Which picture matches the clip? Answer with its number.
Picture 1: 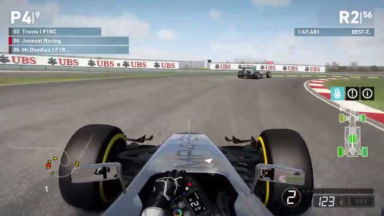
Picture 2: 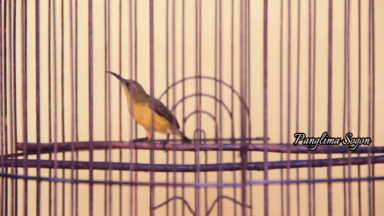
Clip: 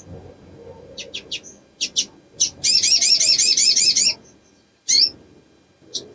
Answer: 2